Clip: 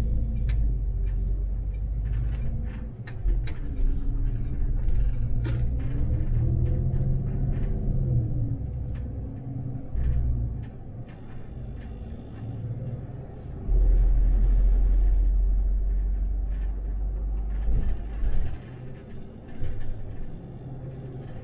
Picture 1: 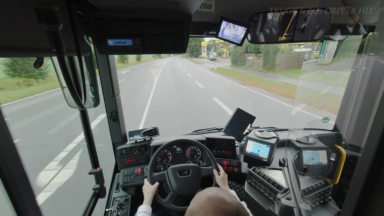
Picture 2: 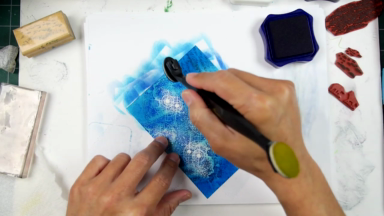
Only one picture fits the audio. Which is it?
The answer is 1